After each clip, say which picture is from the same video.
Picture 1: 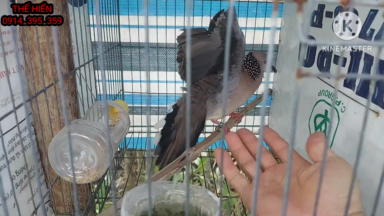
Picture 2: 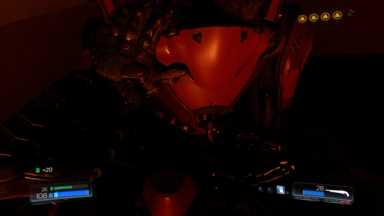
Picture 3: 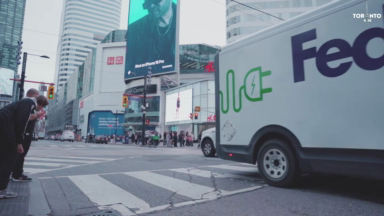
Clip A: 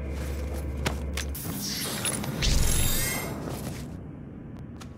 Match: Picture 2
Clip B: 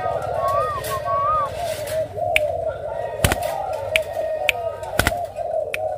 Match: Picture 1